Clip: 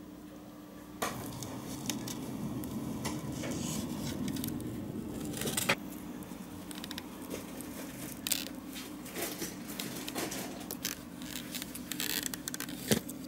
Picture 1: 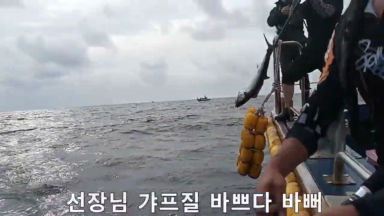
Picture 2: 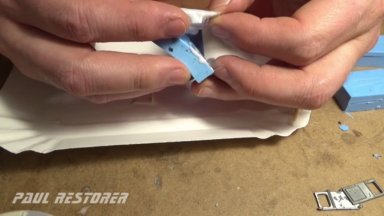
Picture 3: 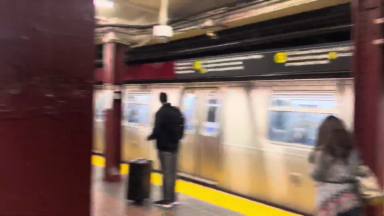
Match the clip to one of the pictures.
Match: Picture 2